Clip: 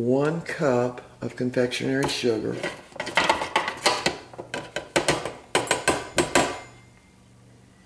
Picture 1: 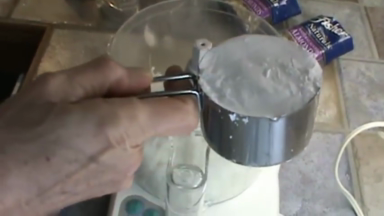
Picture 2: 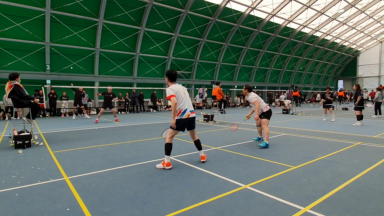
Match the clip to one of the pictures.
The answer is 1